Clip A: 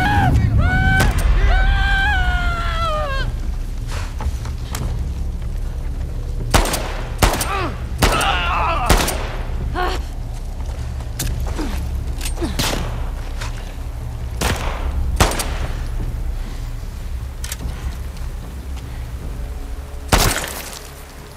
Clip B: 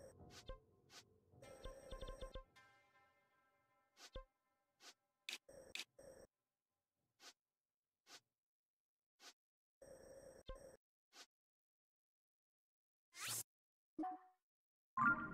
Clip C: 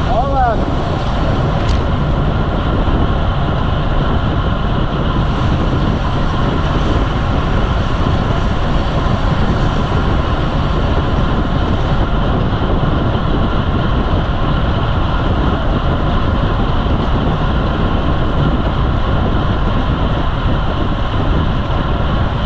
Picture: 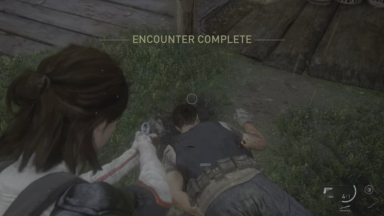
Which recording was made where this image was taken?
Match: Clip A